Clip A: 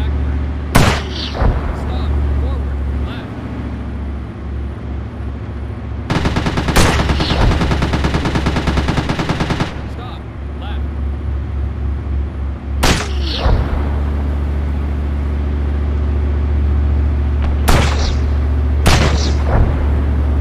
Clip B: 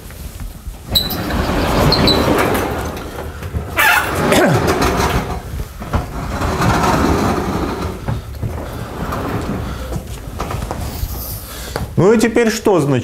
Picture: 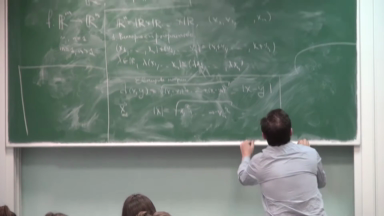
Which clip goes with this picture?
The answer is B